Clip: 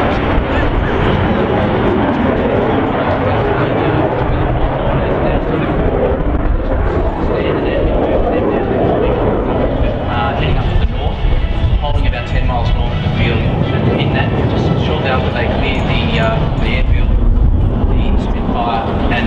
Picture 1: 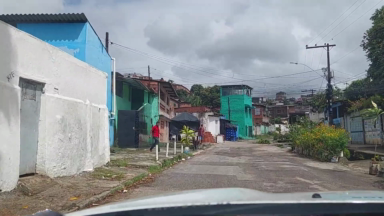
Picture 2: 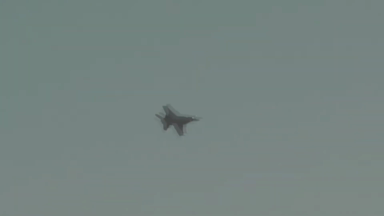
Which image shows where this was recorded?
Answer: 2